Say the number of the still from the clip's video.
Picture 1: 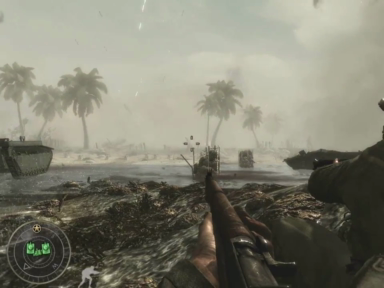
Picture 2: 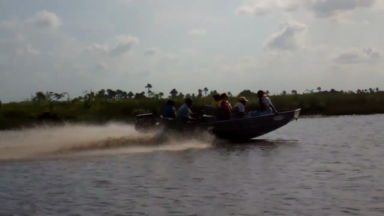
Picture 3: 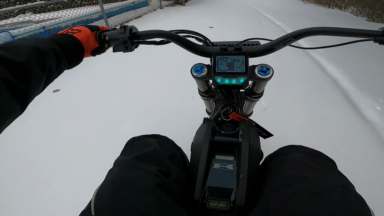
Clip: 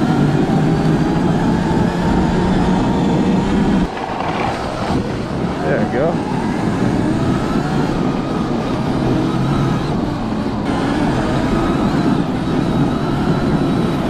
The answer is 3